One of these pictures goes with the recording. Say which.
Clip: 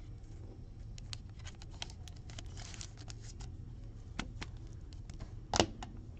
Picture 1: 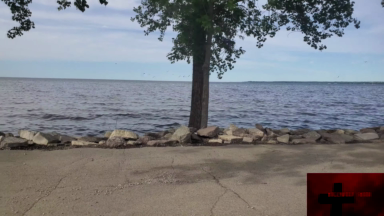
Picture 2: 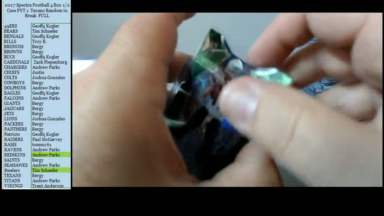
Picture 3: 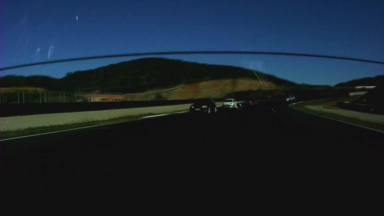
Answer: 2